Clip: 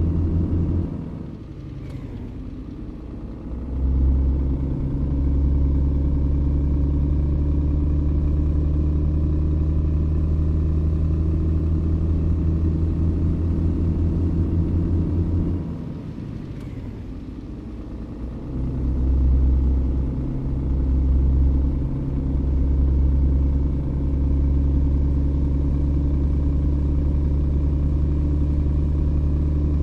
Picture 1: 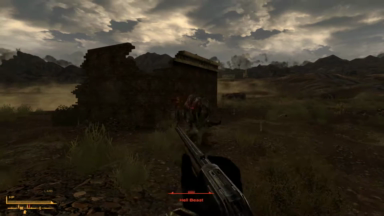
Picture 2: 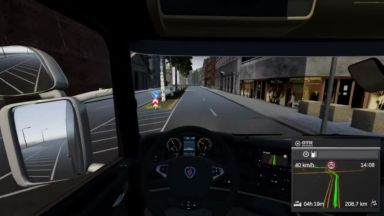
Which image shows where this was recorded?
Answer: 2